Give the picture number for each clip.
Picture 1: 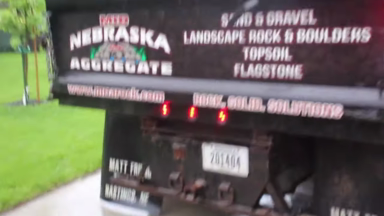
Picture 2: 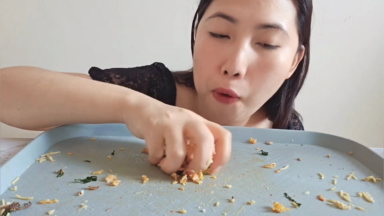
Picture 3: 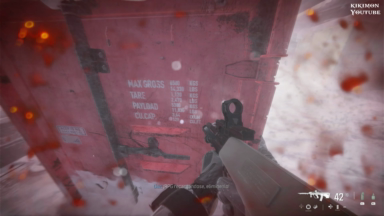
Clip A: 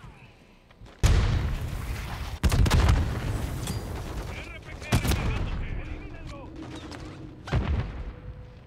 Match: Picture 3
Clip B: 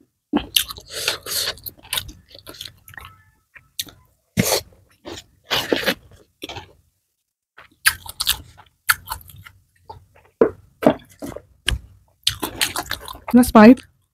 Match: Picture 2